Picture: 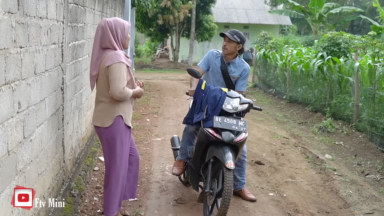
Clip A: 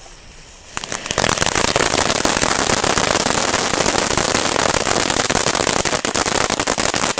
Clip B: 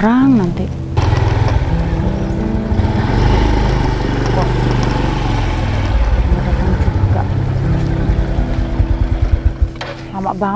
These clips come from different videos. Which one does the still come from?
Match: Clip B